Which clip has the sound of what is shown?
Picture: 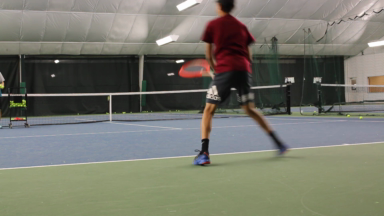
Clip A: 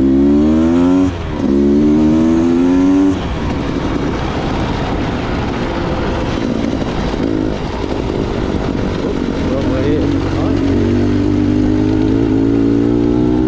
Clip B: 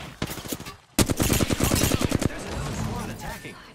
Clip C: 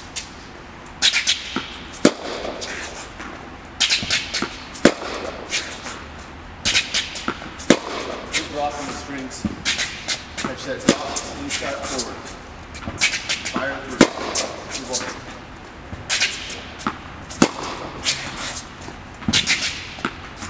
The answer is C